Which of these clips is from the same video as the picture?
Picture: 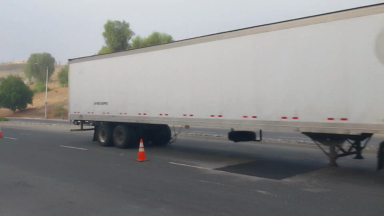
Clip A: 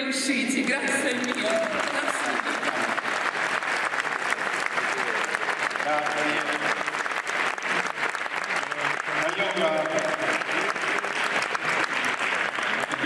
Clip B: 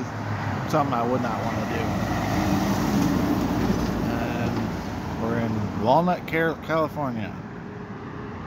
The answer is B